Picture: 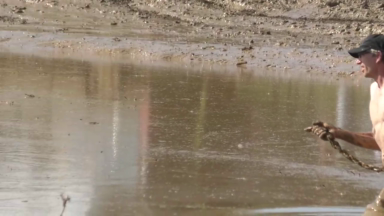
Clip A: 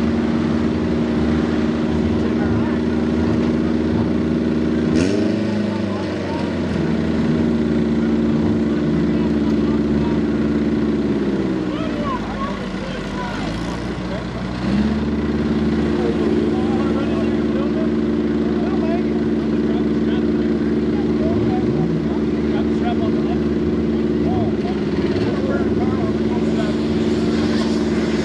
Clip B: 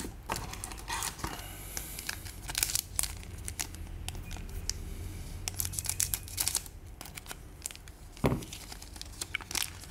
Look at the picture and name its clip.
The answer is A